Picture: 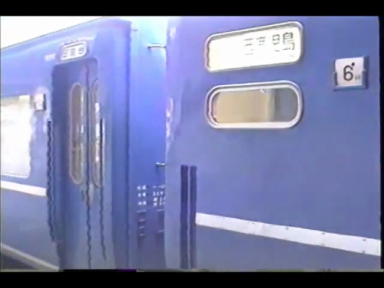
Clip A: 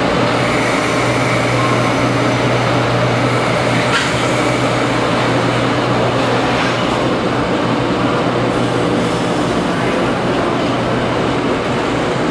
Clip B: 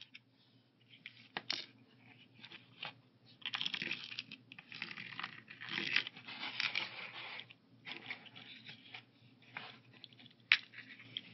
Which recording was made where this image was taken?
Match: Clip A